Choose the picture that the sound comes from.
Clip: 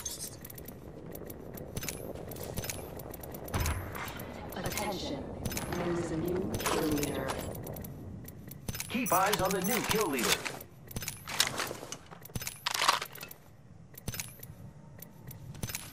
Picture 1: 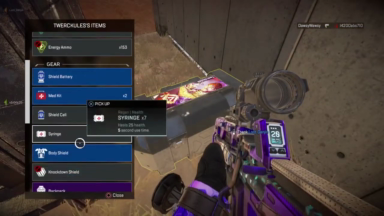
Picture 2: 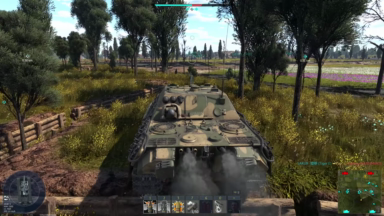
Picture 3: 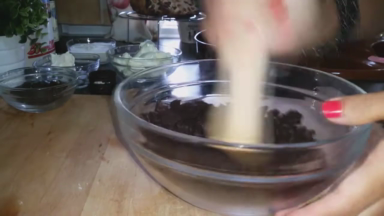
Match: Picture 1